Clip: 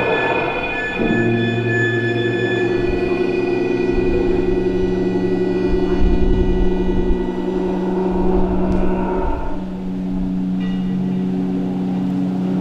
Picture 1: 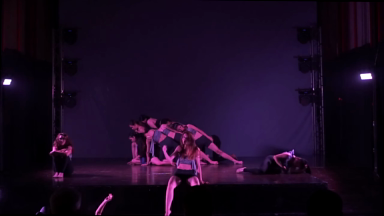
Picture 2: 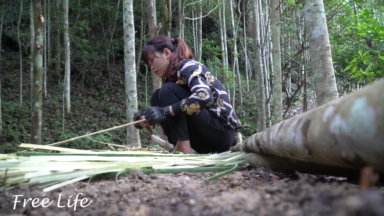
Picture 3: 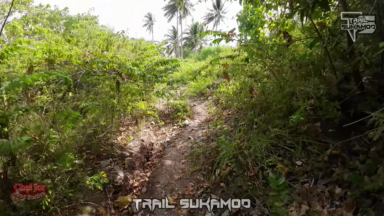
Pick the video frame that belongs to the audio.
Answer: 1